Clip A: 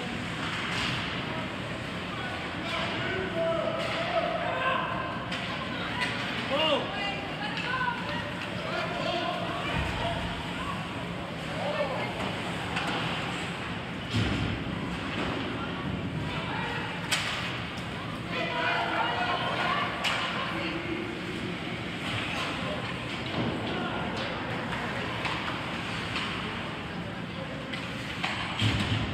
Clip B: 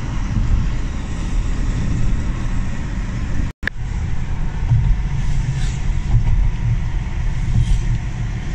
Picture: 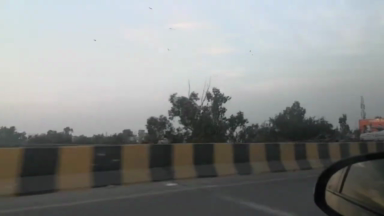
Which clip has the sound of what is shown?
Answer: B